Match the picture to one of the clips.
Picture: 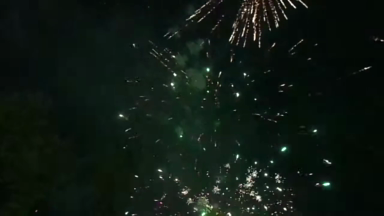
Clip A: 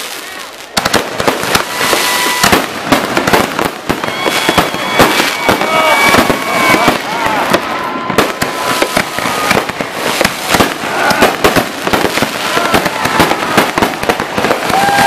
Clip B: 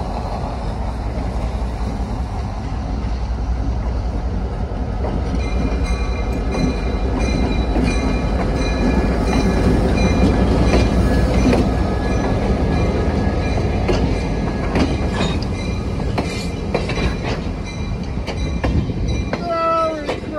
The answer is A